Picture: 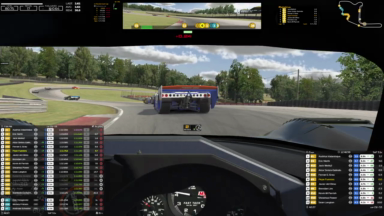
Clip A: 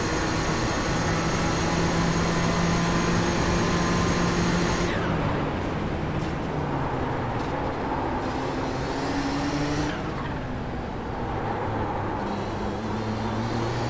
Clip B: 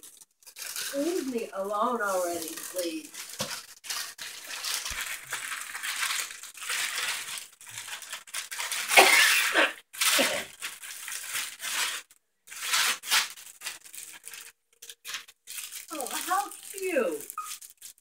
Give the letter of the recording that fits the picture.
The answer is A